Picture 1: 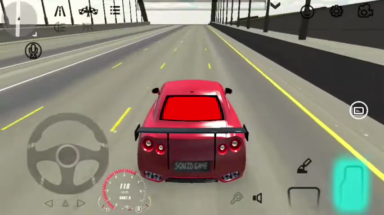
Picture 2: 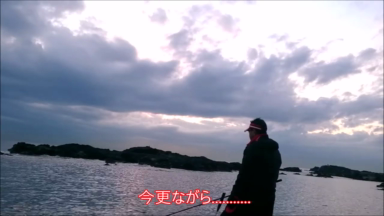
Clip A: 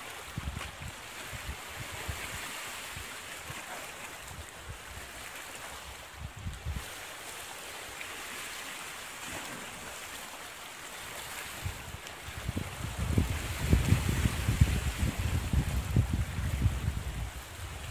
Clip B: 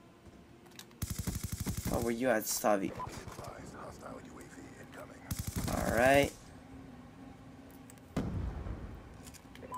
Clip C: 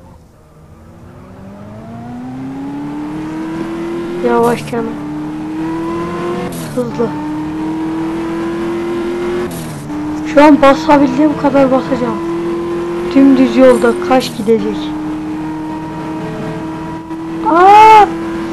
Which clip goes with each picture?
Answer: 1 C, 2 A